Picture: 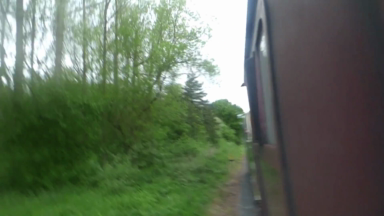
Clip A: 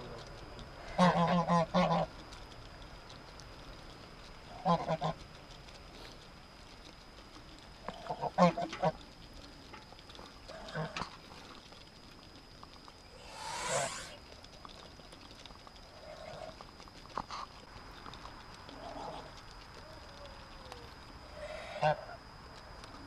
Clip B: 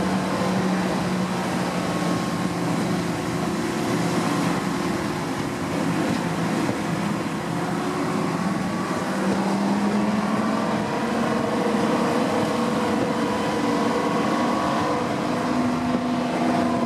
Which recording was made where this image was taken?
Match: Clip B